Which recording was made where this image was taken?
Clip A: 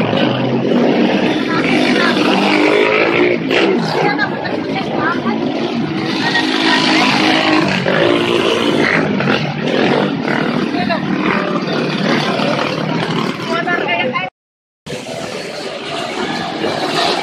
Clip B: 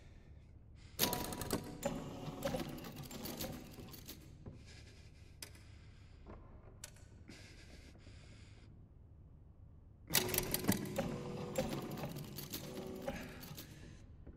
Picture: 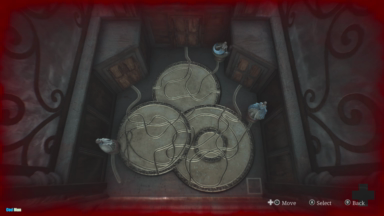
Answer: B